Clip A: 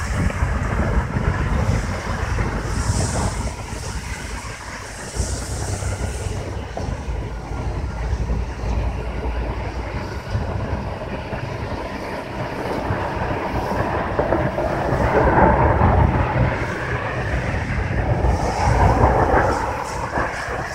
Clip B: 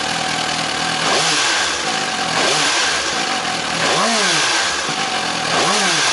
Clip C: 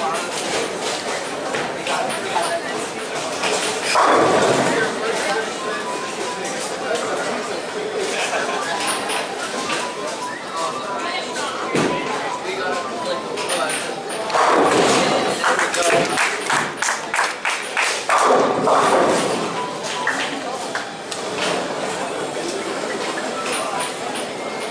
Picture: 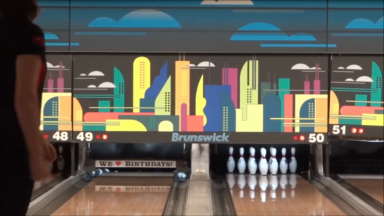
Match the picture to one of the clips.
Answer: C